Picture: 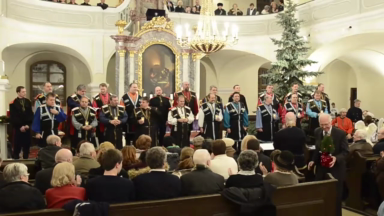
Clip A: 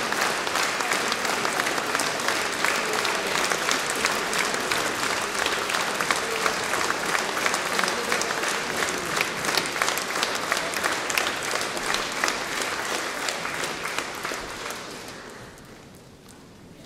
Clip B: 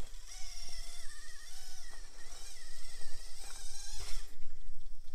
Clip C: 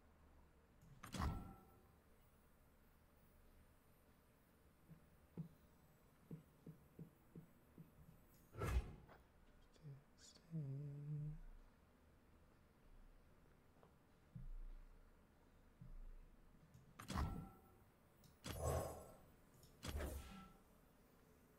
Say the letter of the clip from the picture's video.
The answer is A